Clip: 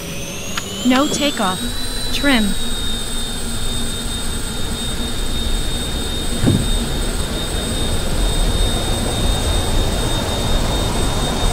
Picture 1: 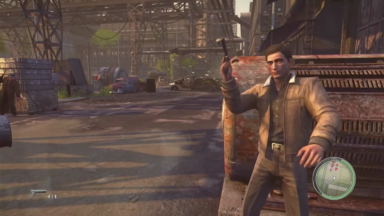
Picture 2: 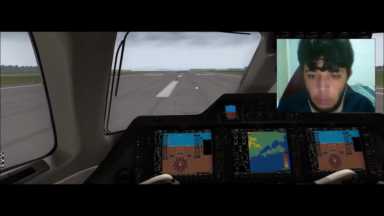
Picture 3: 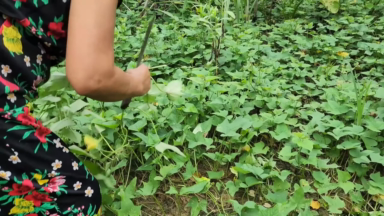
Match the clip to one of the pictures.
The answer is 2